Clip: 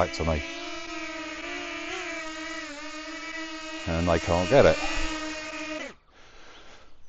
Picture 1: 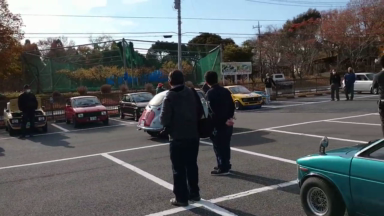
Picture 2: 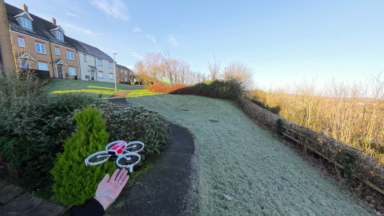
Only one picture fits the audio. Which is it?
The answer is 2